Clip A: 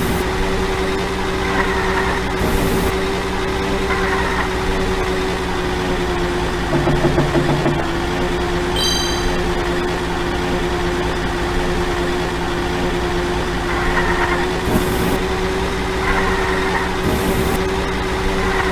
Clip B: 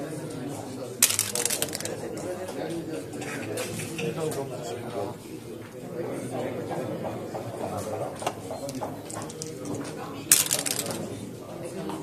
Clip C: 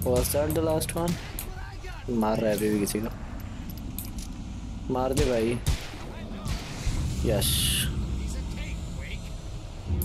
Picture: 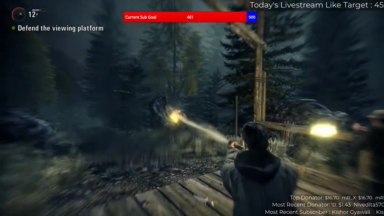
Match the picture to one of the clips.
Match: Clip C